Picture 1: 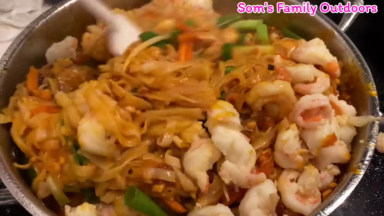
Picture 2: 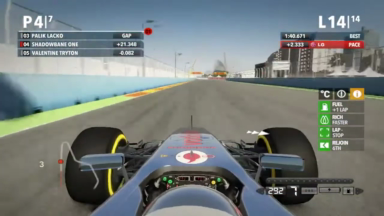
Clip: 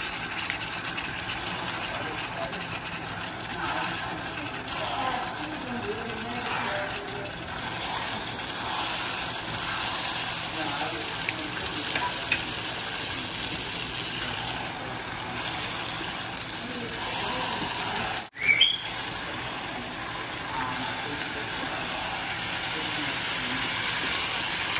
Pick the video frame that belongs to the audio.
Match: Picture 1